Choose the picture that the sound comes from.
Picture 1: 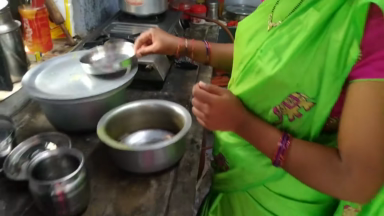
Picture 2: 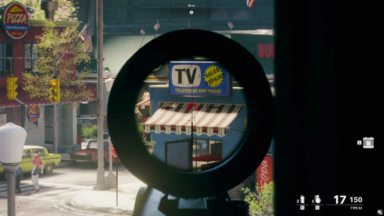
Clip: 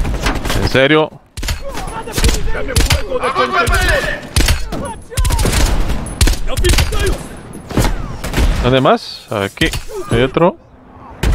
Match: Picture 2